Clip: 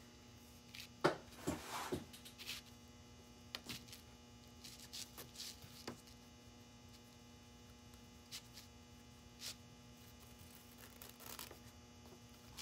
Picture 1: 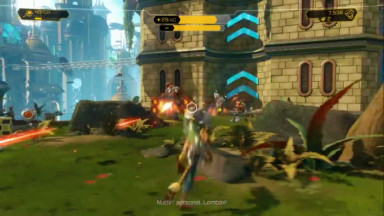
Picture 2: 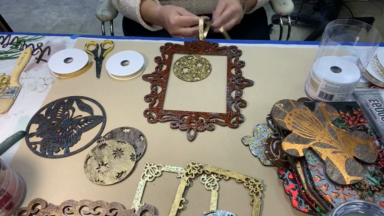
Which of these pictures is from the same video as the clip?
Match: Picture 2